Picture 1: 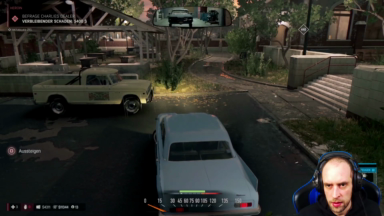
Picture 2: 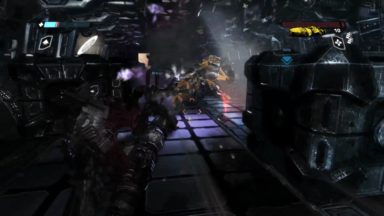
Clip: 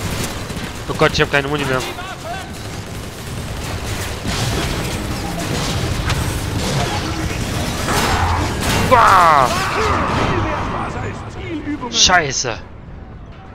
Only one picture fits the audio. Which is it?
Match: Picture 2